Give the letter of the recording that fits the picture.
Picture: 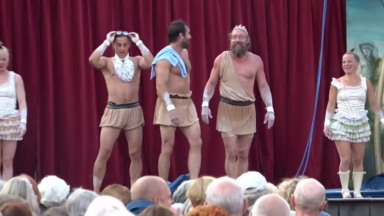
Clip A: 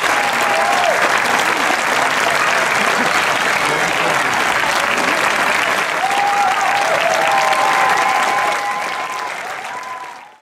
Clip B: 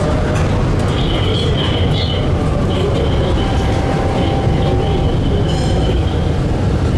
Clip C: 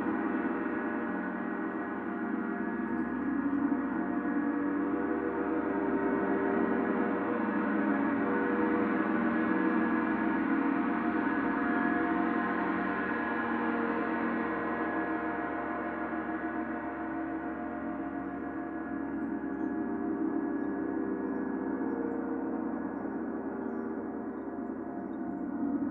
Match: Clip A